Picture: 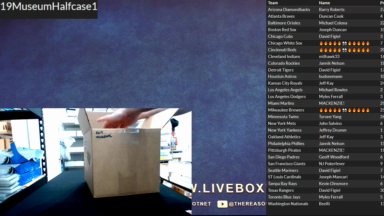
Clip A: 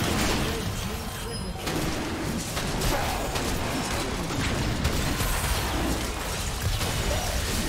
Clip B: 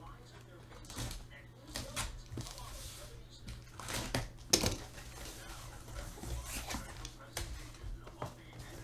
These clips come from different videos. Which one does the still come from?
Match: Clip B